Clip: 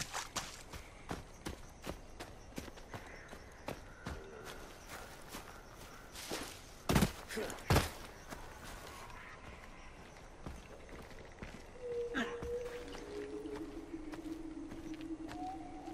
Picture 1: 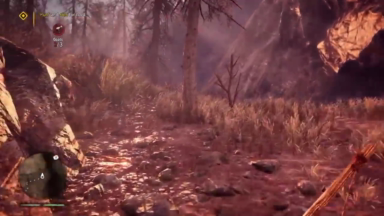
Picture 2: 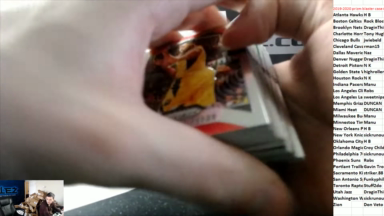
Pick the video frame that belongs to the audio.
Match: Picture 1